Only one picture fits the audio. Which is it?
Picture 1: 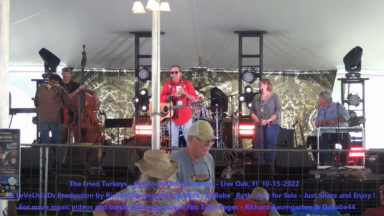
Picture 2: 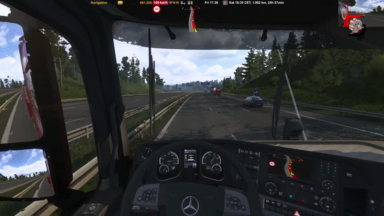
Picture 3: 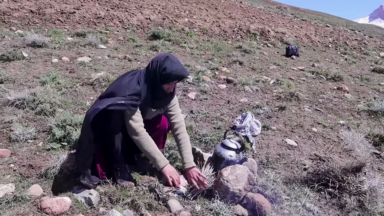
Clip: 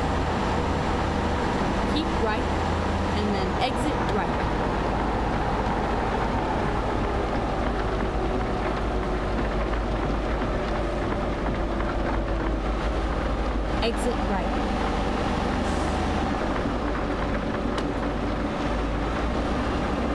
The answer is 2